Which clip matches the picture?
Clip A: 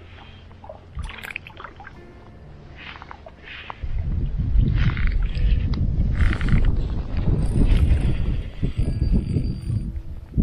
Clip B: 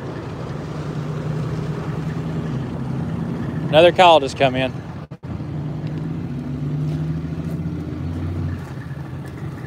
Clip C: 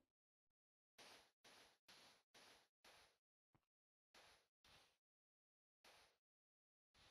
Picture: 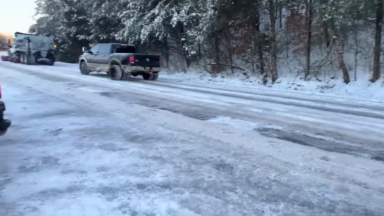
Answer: B